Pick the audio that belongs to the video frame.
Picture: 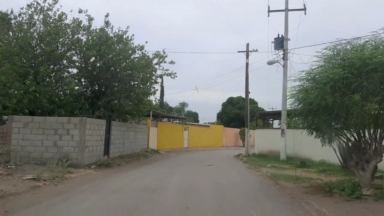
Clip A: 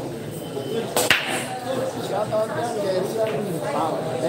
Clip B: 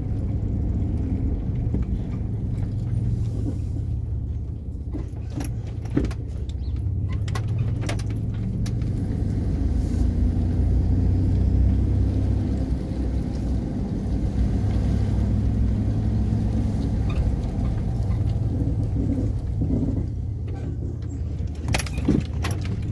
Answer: B